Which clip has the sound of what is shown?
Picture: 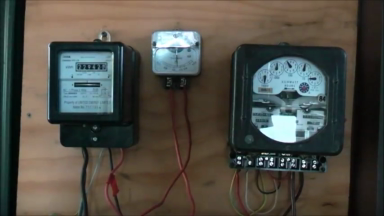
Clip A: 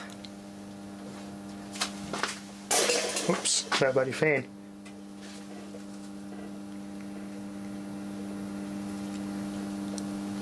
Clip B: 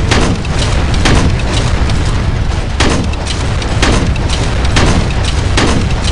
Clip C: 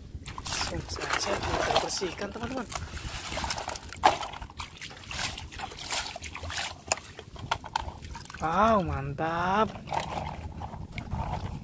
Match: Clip A